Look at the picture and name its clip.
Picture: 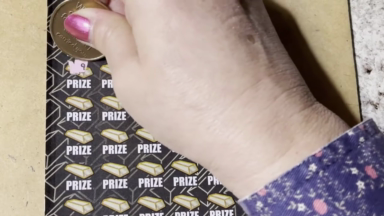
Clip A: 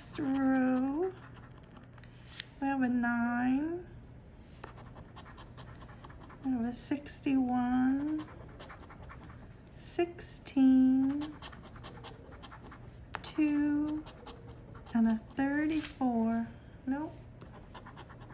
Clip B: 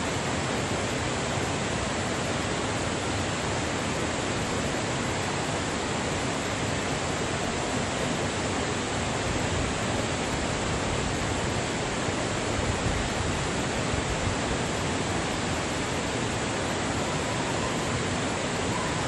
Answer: A